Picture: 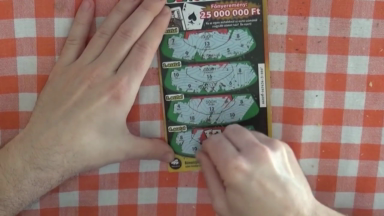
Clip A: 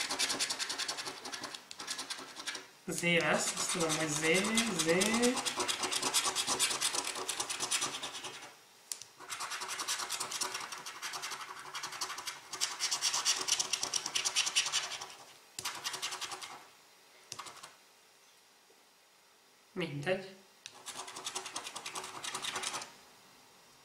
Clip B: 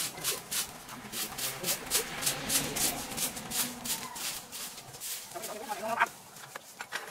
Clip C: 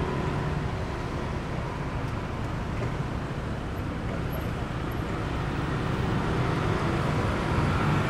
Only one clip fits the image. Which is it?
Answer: A